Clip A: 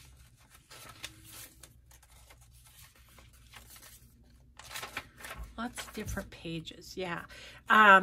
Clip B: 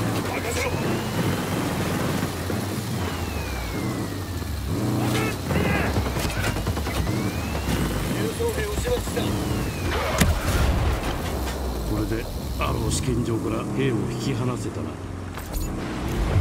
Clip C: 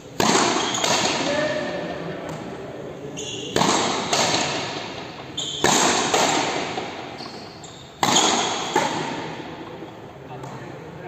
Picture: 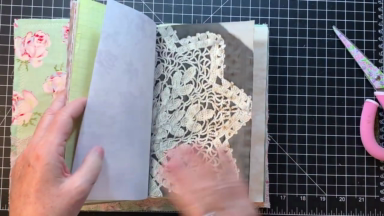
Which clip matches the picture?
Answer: A